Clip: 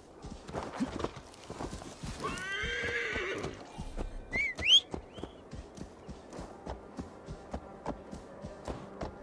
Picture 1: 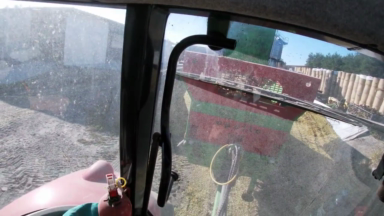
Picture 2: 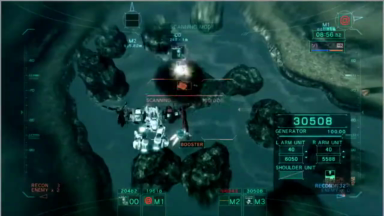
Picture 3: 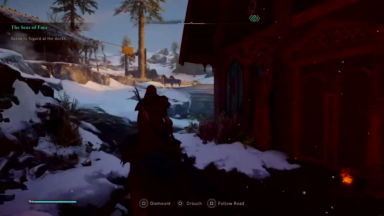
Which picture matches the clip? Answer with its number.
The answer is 3